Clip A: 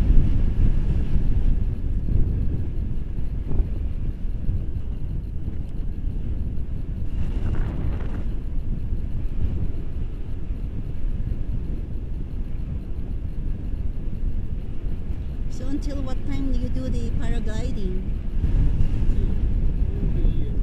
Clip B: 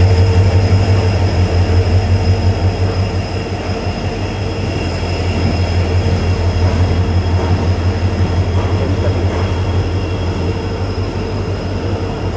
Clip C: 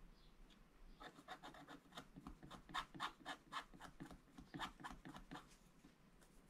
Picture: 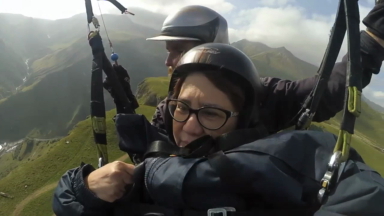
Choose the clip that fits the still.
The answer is A